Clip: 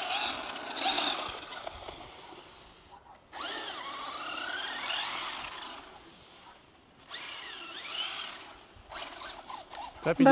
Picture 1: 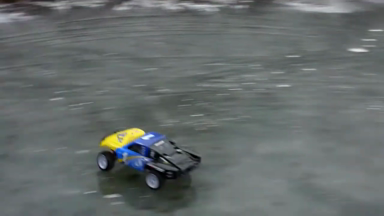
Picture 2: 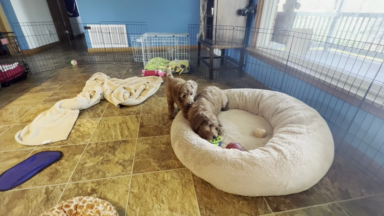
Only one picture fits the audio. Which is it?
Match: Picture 1